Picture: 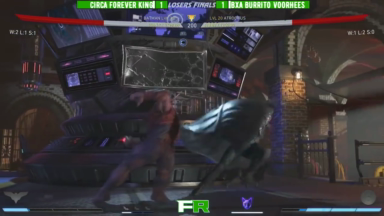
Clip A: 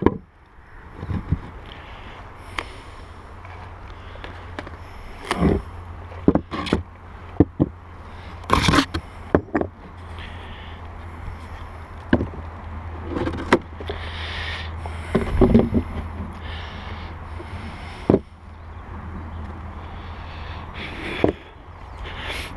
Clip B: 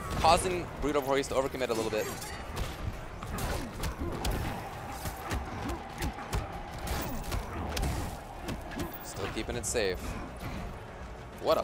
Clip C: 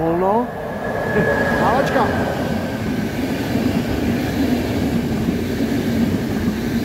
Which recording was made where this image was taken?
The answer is B